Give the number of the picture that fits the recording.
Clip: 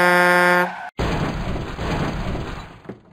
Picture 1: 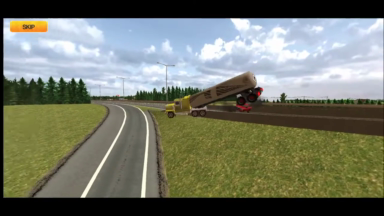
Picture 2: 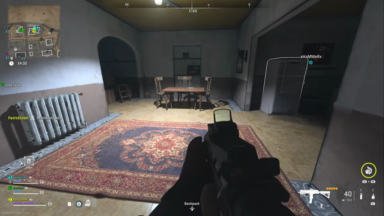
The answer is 1